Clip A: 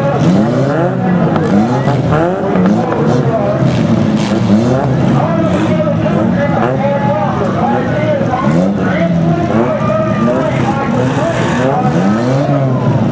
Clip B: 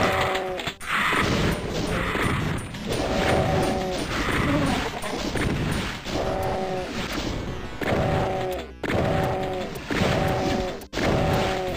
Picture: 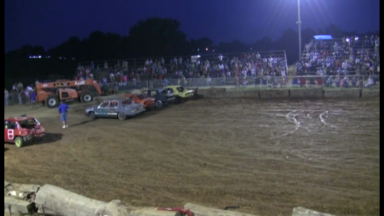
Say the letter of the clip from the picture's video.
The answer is A